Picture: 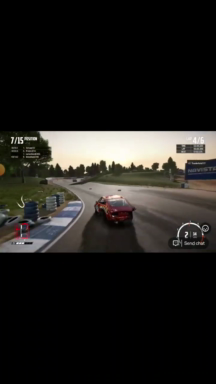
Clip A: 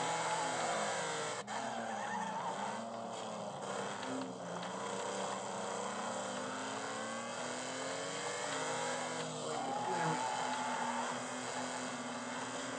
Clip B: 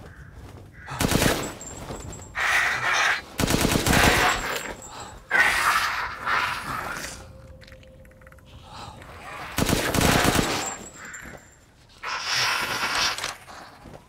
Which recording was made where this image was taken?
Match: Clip A